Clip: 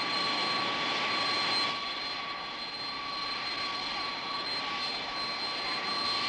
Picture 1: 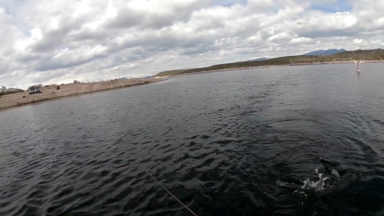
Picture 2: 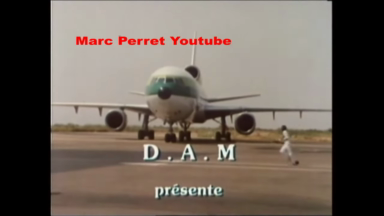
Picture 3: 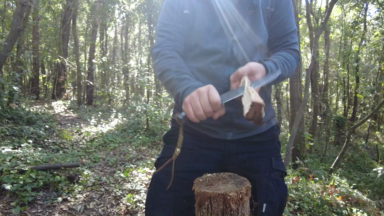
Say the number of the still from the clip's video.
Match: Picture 2